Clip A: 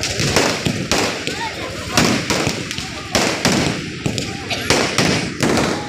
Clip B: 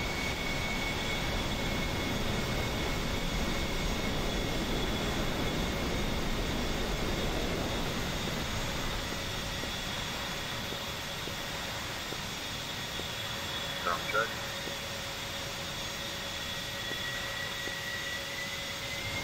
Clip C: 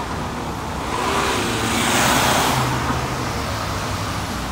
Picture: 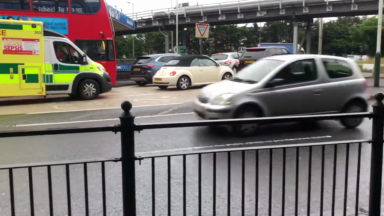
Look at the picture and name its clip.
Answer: C